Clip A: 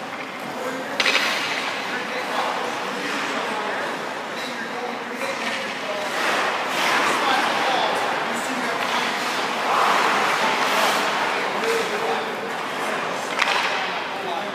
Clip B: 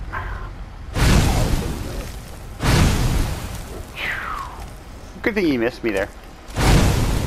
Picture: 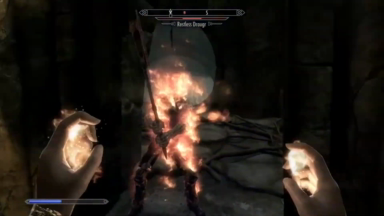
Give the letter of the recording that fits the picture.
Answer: B